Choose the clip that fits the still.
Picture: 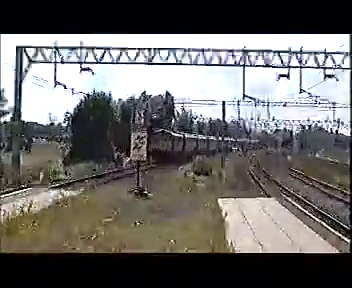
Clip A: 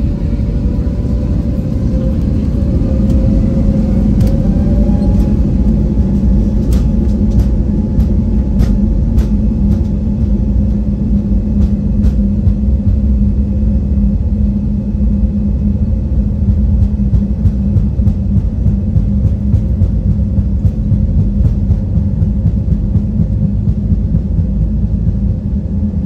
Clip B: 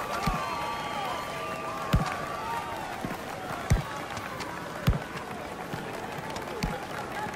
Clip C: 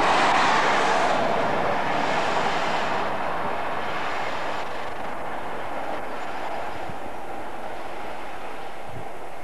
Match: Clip C